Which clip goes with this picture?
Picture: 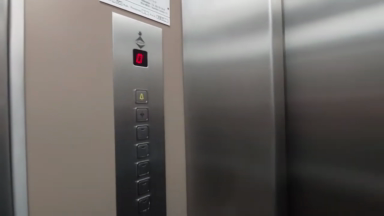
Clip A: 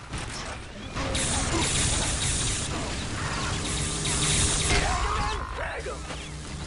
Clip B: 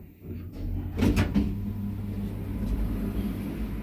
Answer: B